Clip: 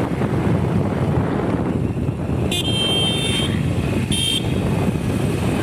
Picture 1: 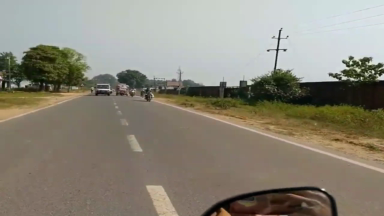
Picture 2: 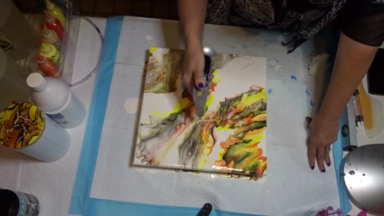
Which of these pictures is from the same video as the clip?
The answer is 1